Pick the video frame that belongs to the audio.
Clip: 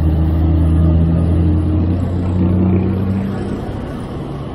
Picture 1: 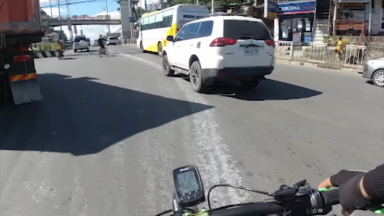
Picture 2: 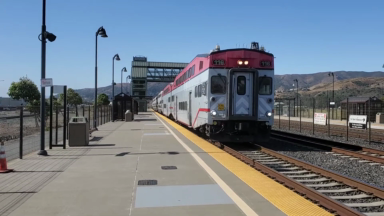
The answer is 1